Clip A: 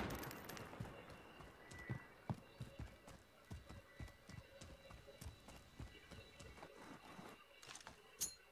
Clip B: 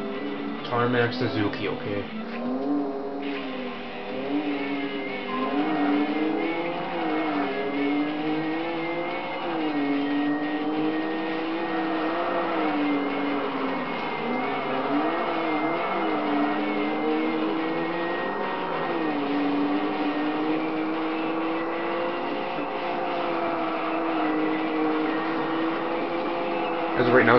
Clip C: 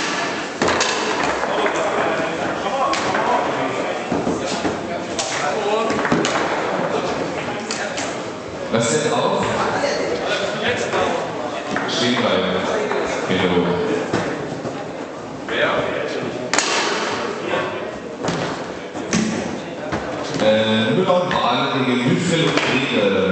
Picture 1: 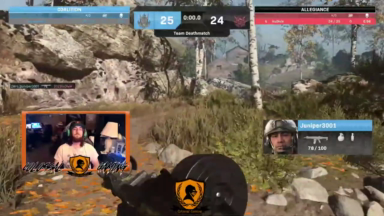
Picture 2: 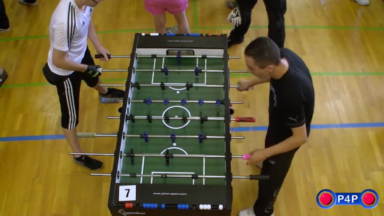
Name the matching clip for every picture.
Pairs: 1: A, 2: C